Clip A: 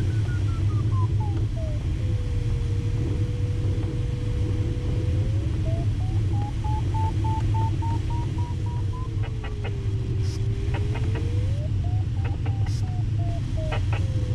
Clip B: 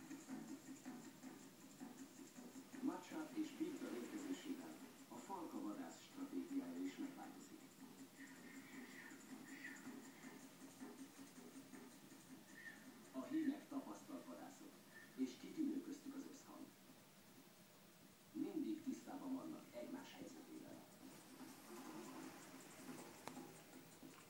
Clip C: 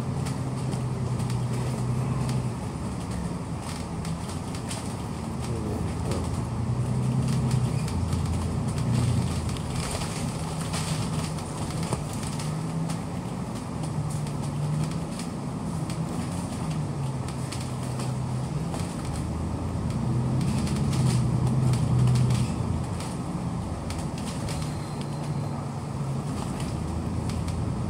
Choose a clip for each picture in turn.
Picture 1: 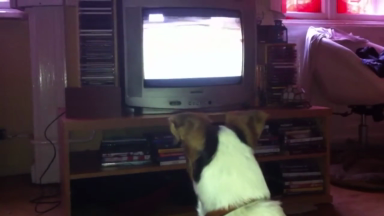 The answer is B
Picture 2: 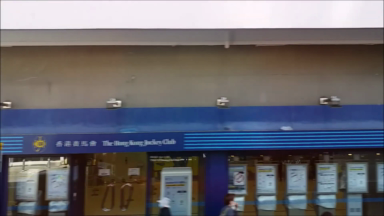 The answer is C